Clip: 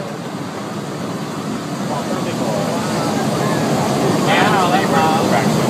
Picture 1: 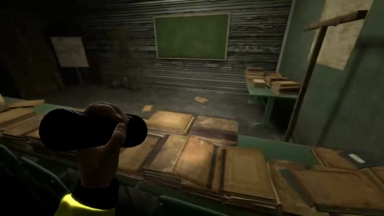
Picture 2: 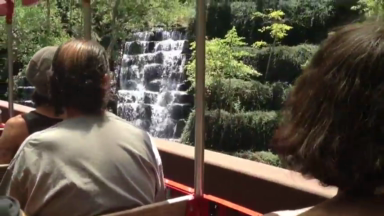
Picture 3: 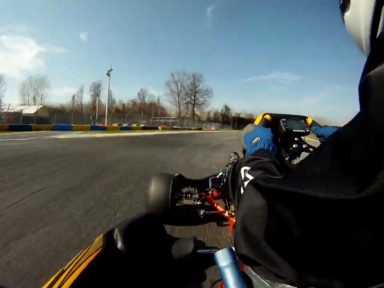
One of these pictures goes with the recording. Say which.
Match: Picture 2